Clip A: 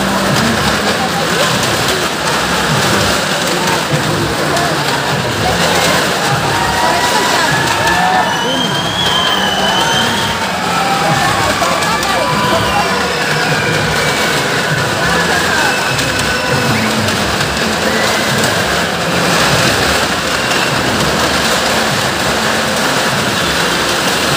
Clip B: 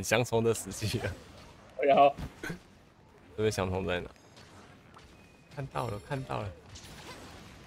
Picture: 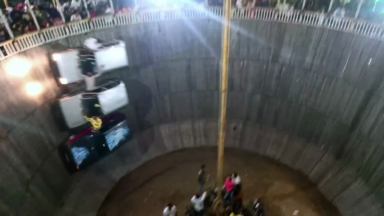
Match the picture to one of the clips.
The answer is A